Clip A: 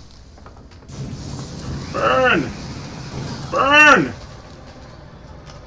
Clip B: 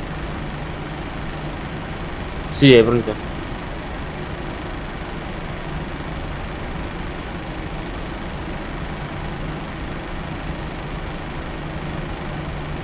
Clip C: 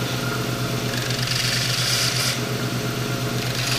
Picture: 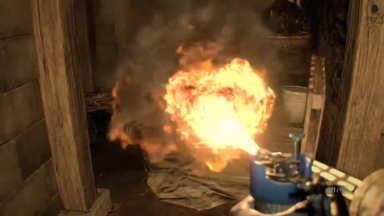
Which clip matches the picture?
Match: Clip A